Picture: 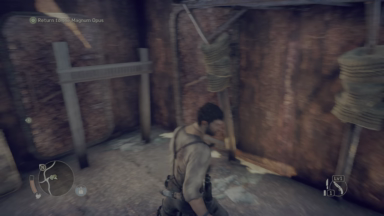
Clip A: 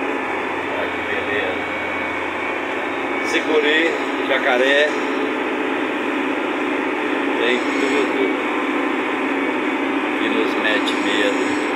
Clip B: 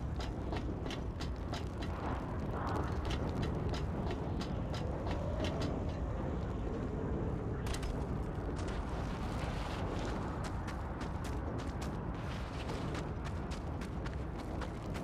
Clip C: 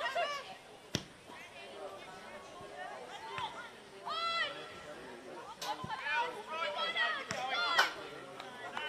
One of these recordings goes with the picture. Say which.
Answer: B